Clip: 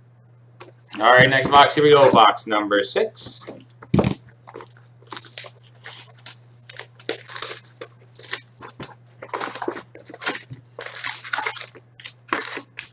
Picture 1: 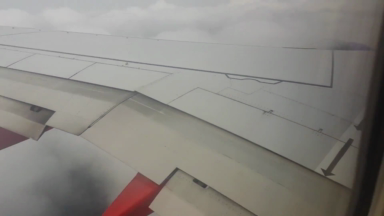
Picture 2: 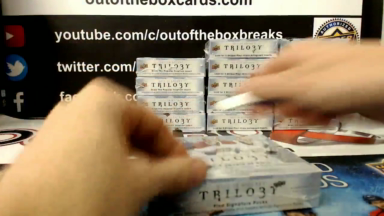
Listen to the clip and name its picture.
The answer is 2